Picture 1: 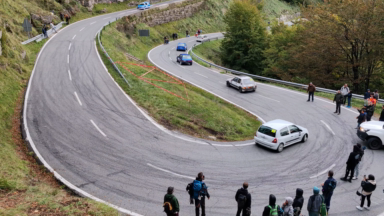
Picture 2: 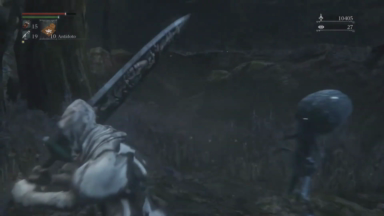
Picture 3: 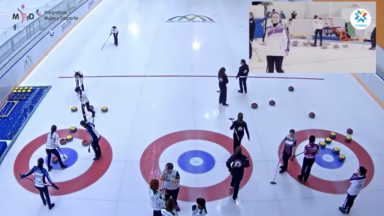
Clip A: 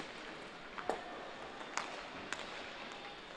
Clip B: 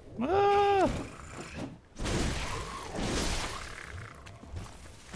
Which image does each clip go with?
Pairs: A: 3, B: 2